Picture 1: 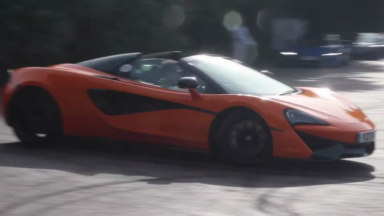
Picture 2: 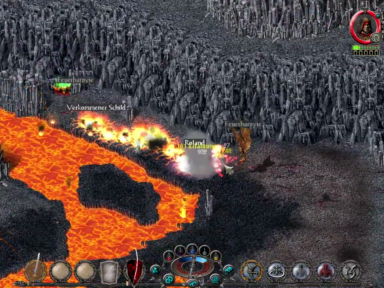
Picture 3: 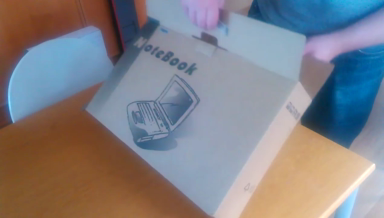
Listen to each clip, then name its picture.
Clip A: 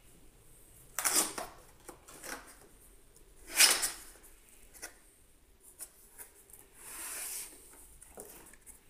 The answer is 3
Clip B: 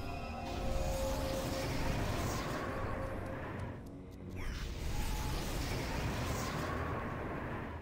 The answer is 2